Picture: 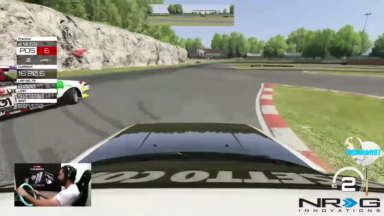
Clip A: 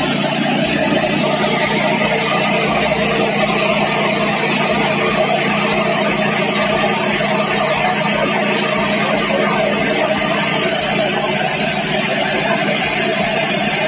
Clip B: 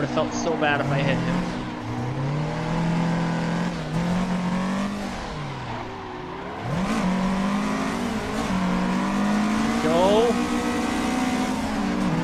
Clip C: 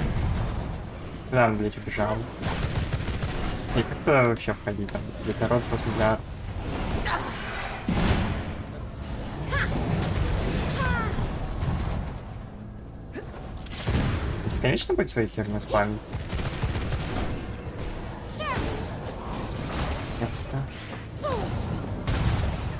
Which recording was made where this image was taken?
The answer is B